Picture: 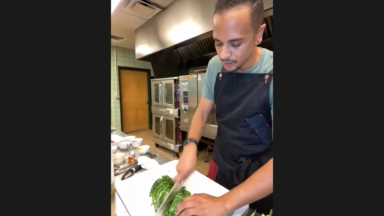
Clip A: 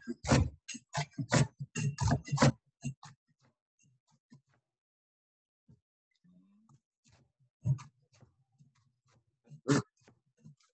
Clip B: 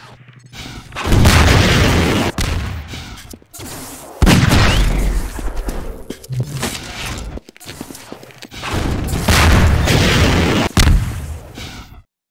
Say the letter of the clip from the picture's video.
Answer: A